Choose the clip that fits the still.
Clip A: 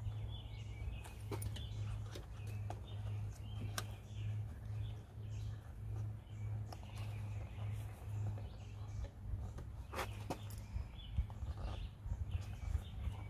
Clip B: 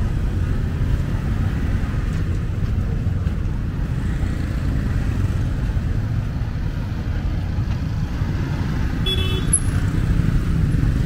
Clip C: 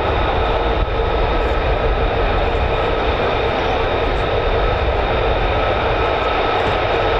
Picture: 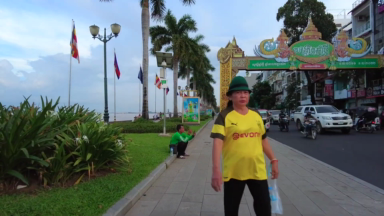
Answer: B